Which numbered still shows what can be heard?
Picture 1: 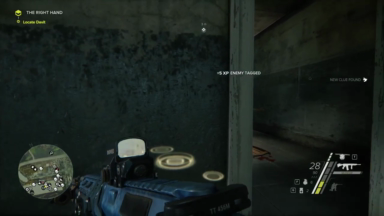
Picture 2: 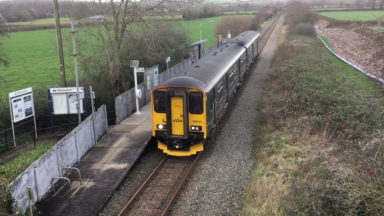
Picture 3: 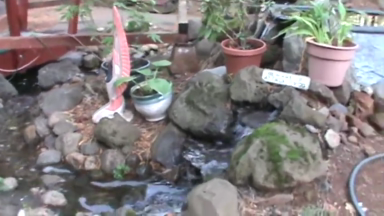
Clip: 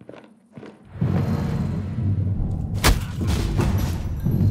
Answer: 1